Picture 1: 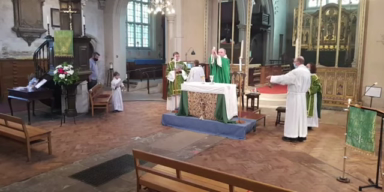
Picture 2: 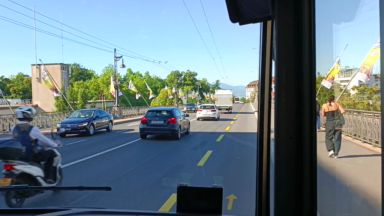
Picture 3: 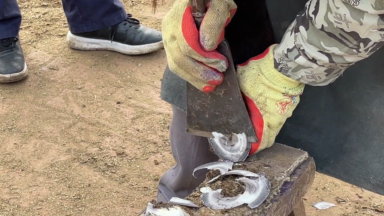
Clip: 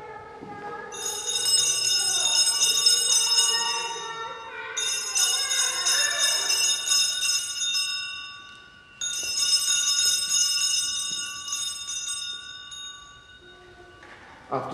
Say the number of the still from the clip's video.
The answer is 1